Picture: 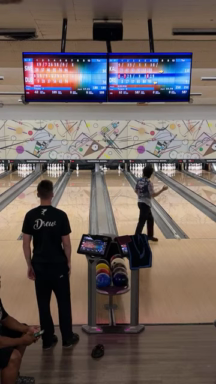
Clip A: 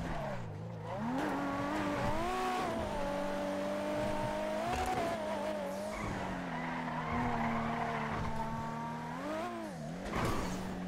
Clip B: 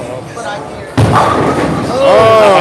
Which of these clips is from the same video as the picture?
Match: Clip B